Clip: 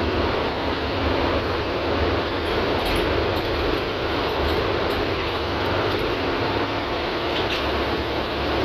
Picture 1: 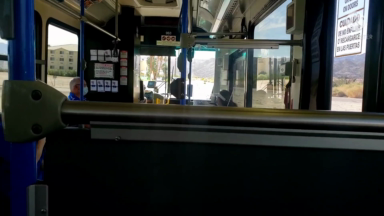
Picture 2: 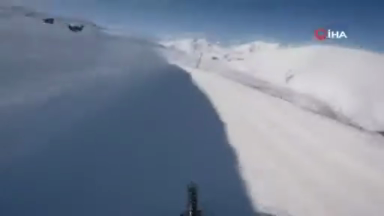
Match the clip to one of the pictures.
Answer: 1